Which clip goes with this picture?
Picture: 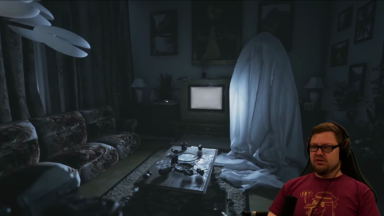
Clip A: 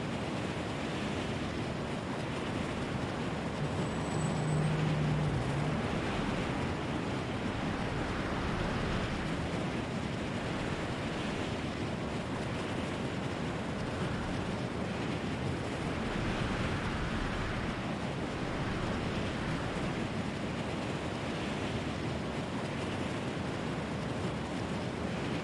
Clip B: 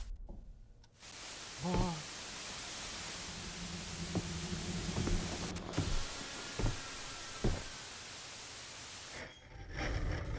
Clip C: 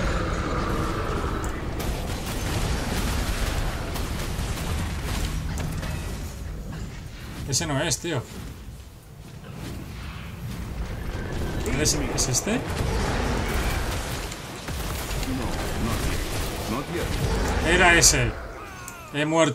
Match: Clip B